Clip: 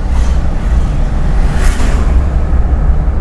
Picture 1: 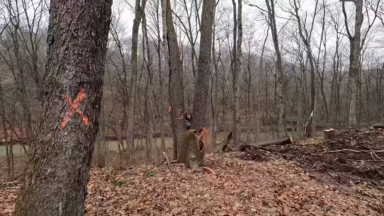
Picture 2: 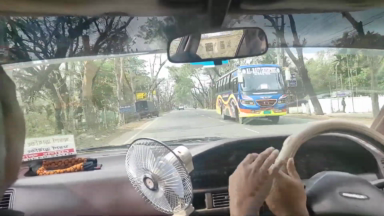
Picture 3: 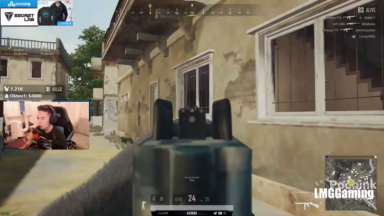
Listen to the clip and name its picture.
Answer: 2